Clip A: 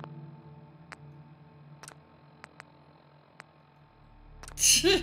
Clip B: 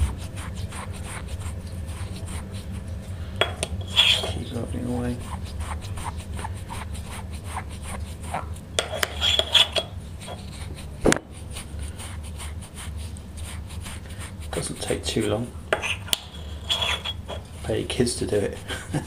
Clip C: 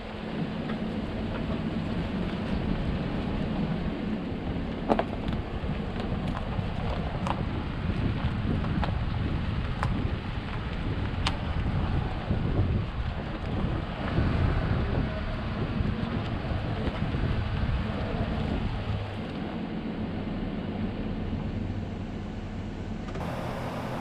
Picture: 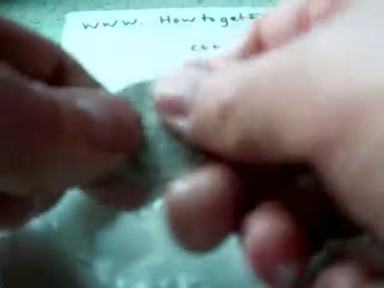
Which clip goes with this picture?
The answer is B